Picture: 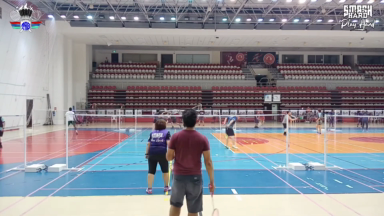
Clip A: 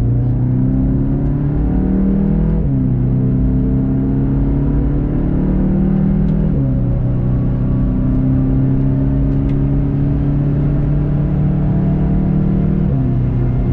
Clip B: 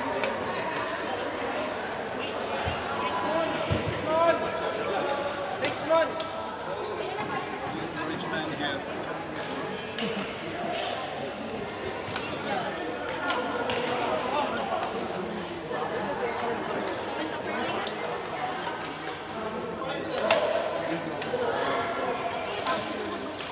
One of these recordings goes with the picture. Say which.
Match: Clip B